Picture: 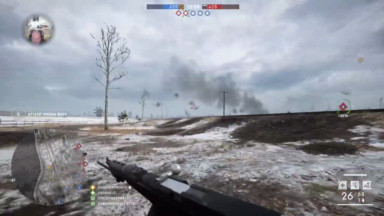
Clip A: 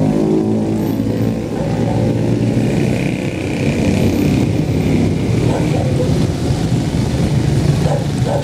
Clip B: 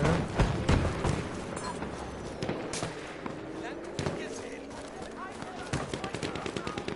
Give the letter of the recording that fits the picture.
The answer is B